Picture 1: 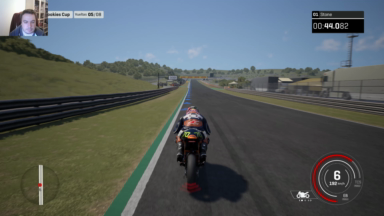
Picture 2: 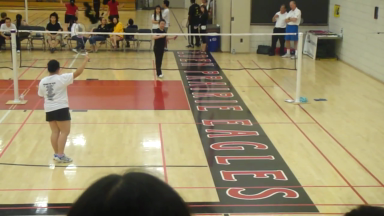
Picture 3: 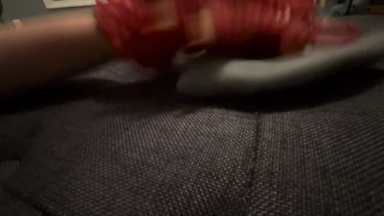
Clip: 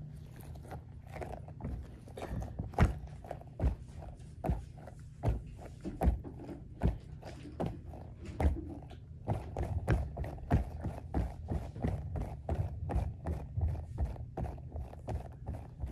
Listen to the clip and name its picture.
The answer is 3